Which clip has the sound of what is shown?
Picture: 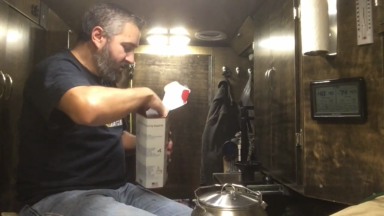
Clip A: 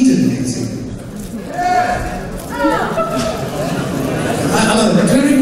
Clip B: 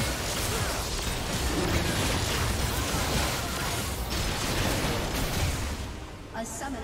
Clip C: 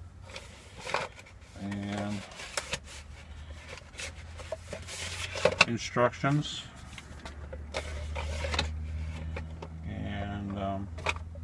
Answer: C